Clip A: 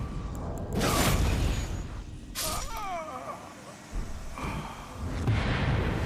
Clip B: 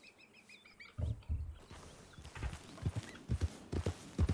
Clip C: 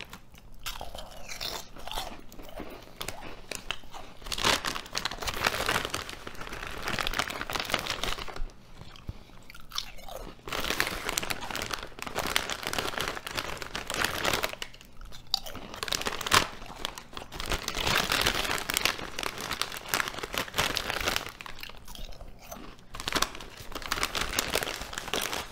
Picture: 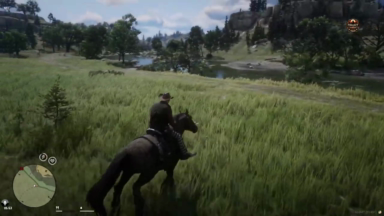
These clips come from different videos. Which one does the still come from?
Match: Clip B